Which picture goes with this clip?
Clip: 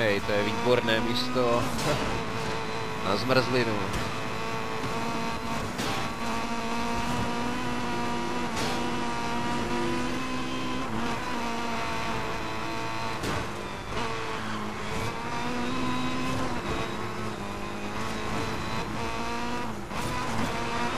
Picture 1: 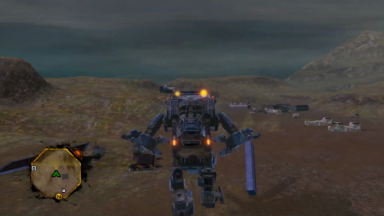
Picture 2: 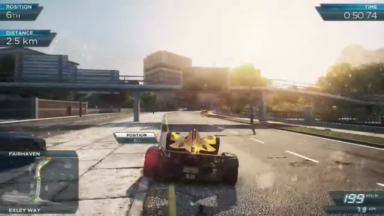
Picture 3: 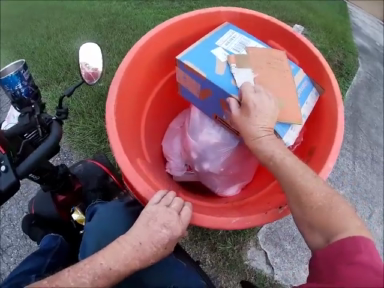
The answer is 2